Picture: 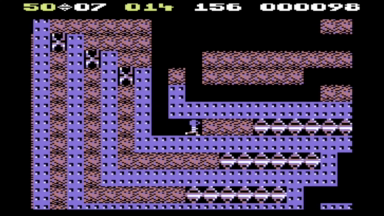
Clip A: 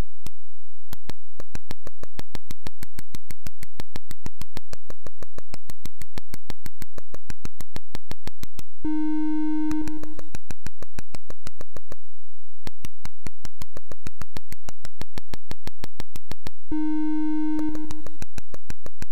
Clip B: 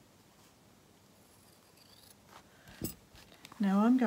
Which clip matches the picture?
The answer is A